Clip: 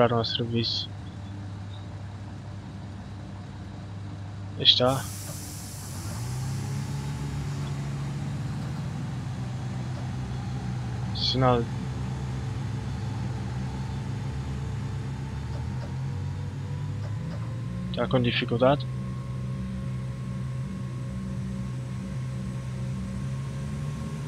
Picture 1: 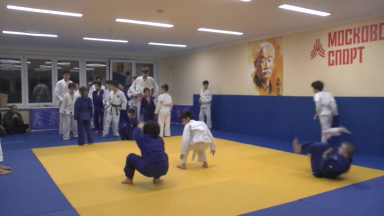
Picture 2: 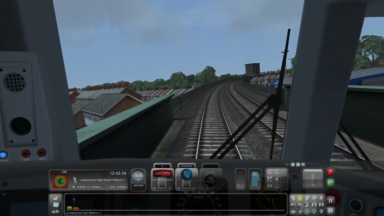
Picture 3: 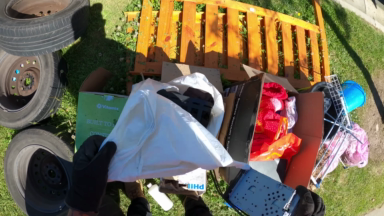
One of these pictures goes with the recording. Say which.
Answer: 2